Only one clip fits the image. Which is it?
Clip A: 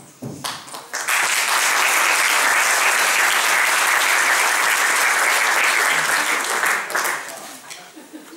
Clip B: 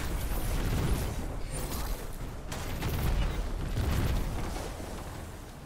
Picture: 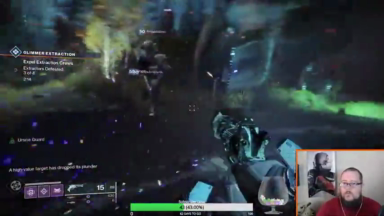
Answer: B